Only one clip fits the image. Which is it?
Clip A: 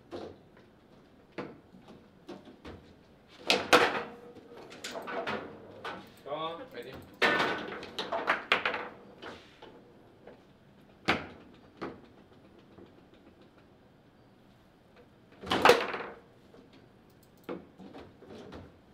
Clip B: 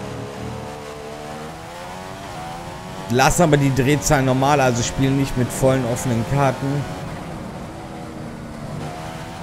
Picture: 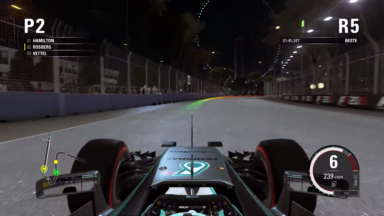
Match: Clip B